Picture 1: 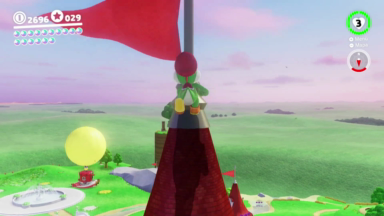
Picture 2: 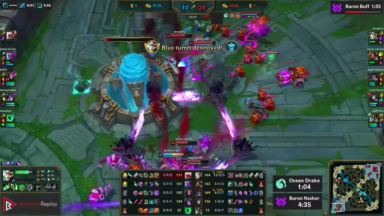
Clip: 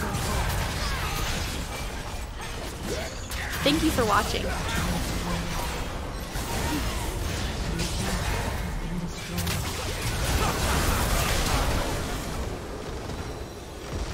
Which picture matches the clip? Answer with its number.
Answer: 2